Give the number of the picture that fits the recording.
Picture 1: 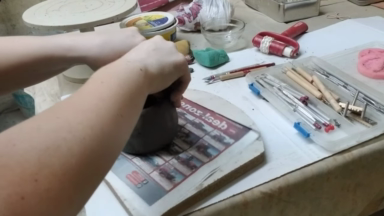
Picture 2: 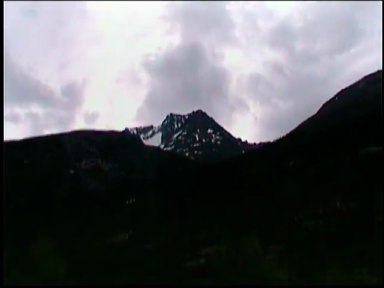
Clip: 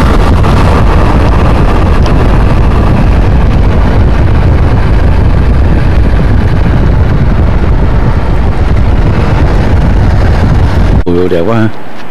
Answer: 2